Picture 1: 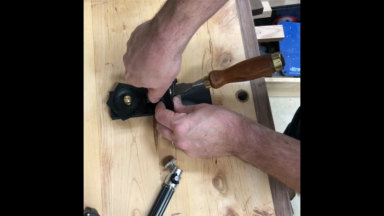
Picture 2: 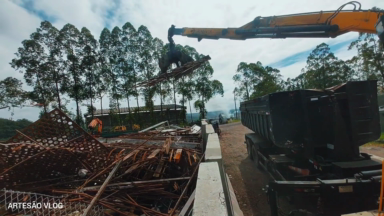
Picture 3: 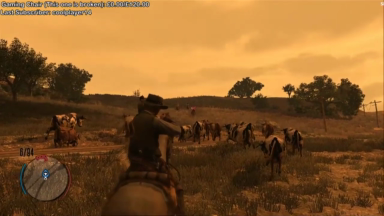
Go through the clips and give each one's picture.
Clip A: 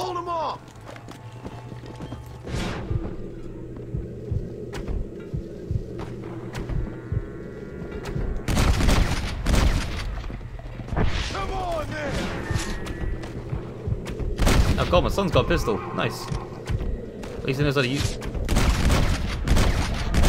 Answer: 3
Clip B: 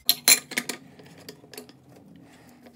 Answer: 1